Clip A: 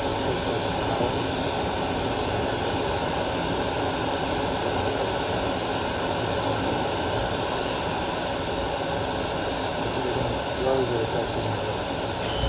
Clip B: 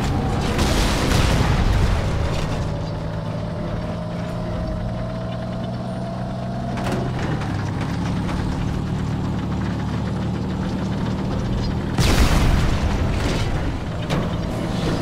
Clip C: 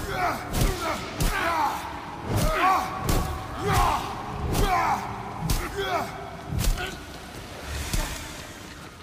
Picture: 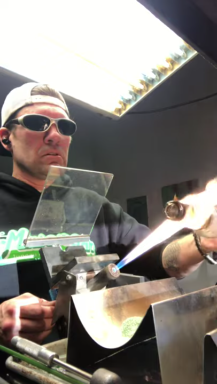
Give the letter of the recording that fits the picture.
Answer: A